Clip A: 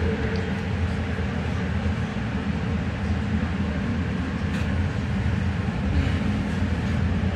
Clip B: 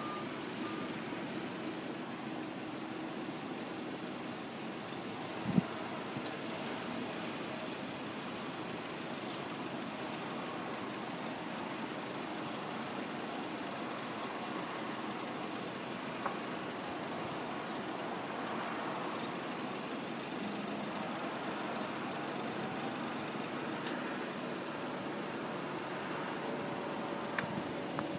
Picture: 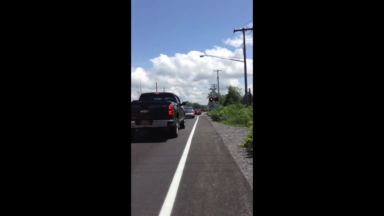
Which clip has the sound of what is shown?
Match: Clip B